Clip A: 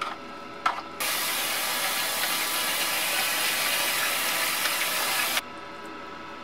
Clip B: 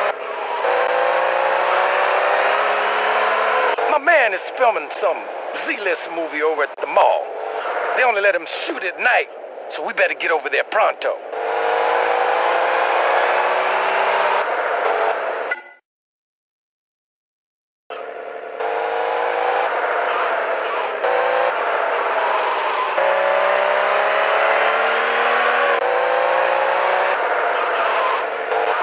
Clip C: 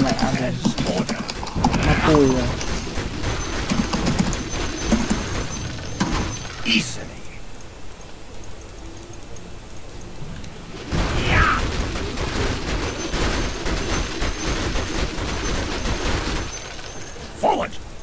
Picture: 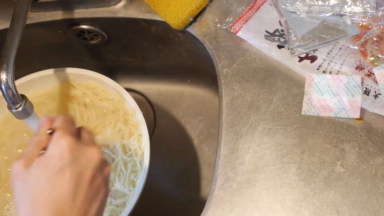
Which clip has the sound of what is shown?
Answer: A